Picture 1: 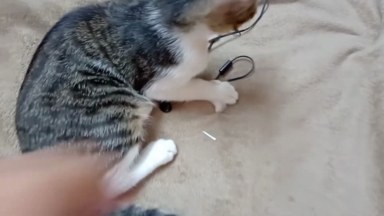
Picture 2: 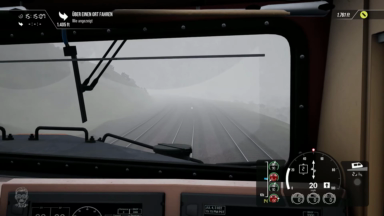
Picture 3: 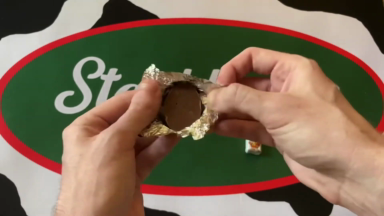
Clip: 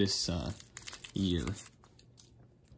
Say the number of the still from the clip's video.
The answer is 3